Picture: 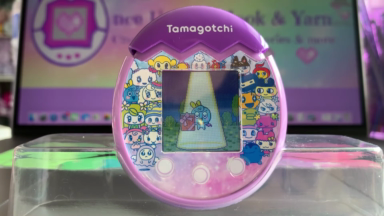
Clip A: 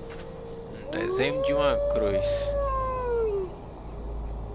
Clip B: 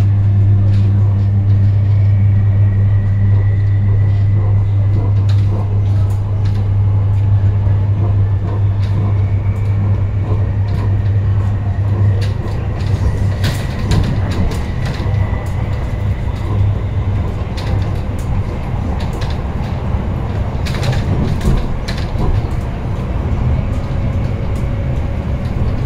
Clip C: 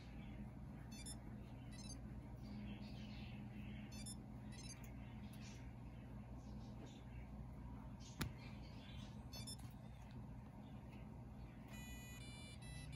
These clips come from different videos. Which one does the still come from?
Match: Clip C